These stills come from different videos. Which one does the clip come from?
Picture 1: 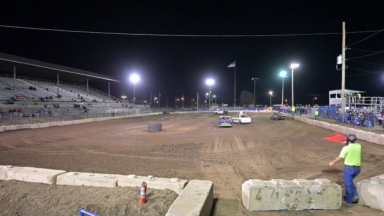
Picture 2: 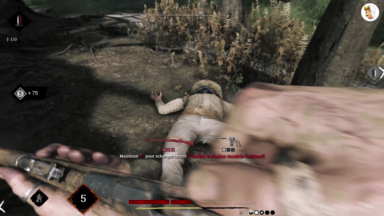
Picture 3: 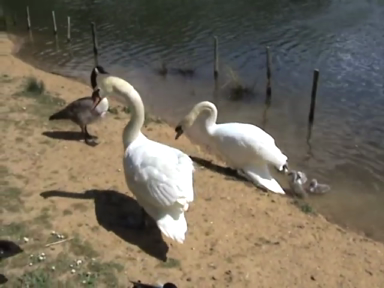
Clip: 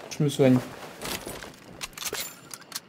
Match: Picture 2